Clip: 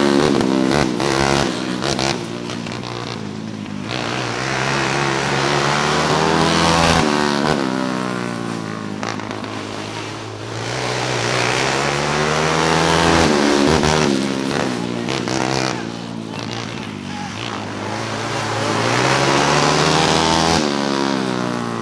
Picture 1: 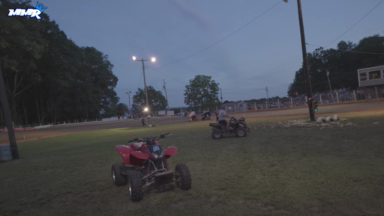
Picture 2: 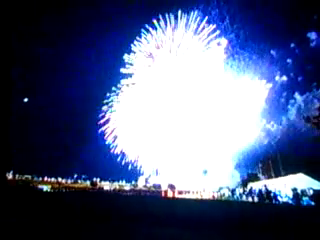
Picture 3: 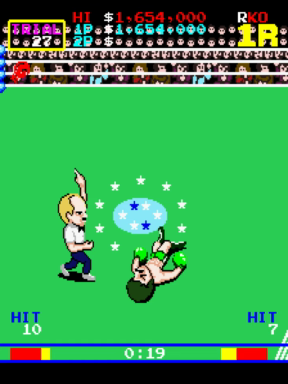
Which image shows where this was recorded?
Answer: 1